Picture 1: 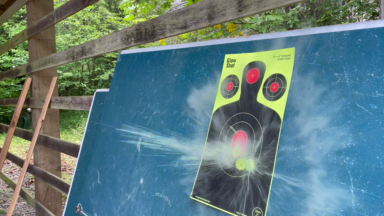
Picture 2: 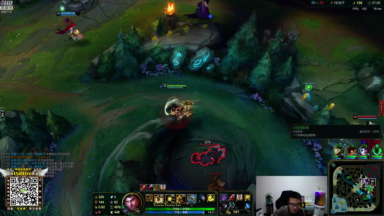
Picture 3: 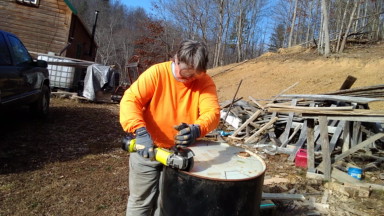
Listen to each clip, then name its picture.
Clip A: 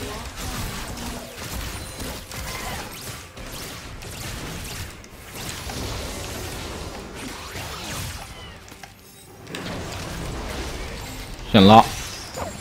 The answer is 2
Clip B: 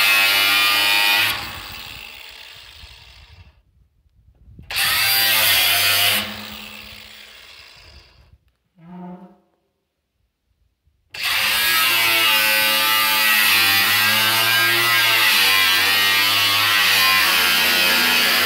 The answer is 3